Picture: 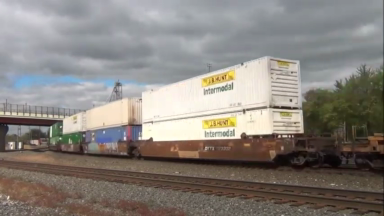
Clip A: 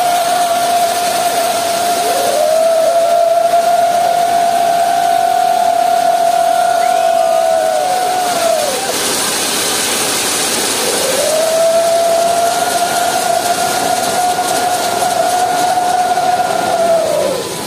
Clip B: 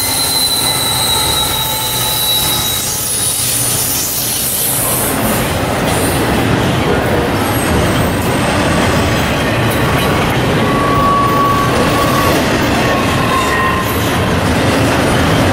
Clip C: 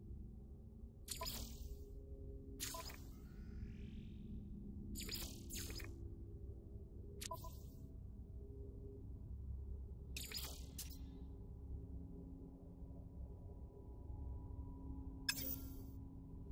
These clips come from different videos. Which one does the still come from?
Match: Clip B